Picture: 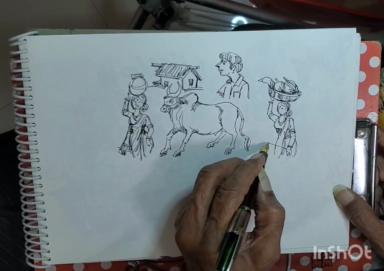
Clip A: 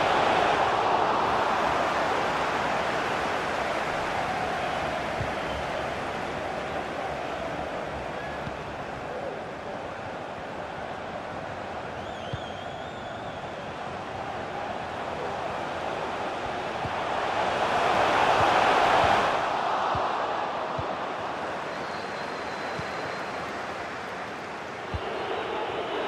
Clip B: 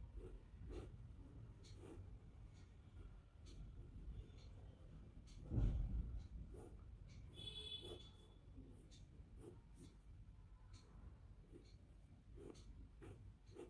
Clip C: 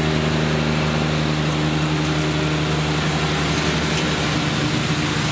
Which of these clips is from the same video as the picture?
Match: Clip B